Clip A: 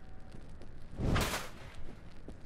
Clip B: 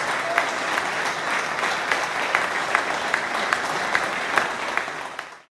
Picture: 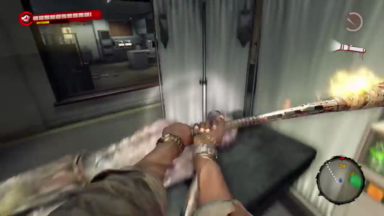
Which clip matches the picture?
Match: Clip A